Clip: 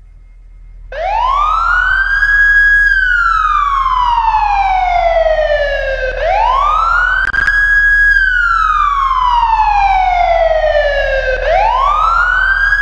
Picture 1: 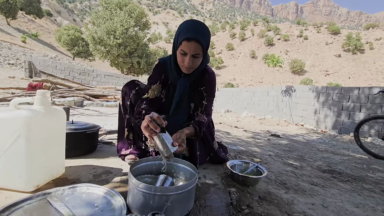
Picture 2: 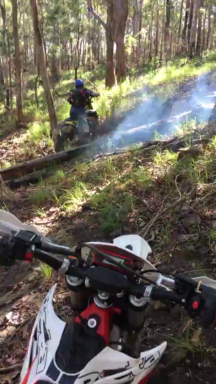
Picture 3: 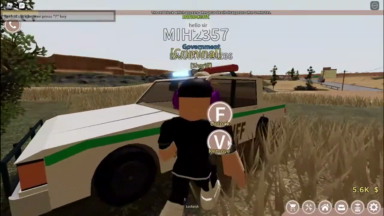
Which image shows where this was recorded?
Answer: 3